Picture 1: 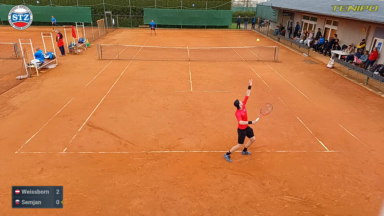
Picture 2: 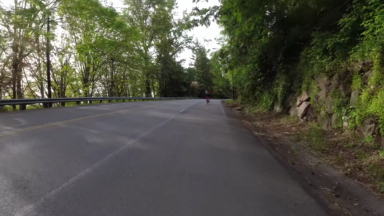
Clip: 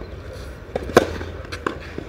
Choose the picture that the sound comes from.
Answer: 1